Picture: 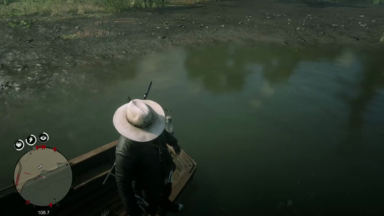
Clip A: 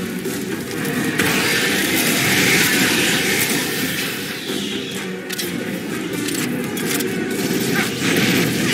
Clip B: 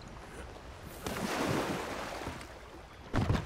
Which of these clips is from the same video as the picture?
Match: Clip B